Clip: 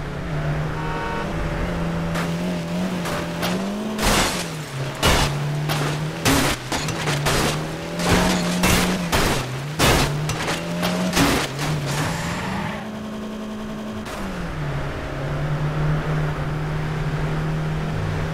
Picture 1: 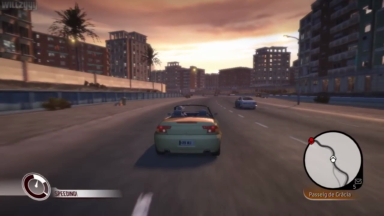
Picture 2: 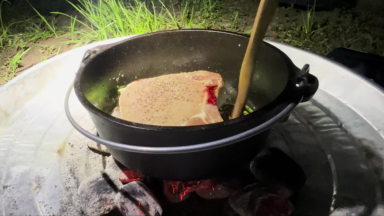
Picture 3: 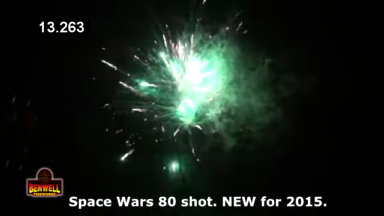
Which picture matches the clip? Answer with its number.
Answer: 1